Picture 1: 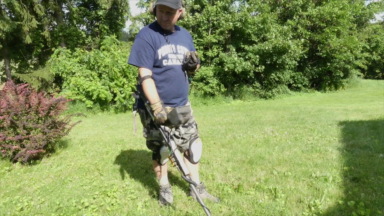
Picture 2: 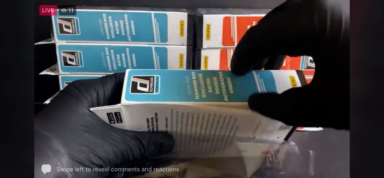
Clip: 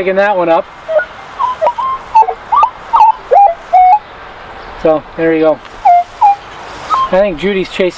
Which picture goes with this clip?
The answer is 1